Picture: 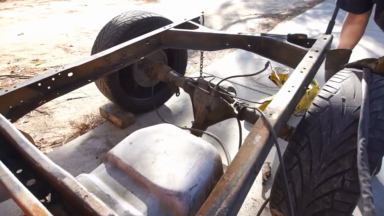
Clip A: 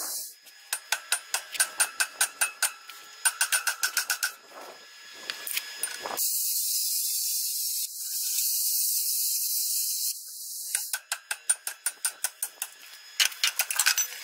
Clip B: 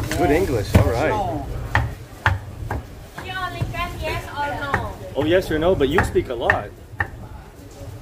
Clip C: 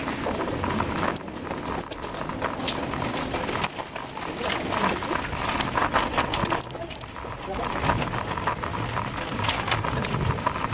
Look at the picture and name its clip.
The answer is A